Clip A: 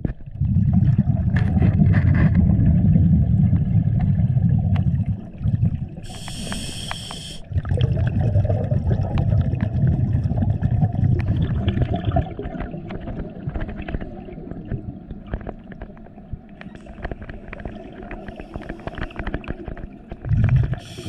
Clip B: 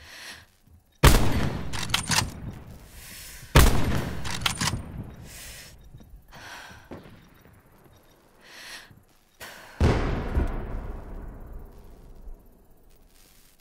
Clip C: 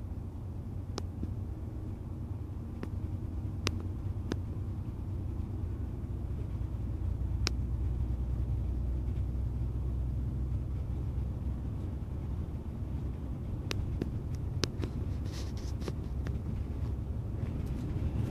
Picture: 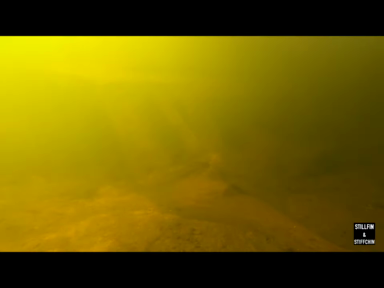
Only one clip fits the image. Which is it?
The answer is A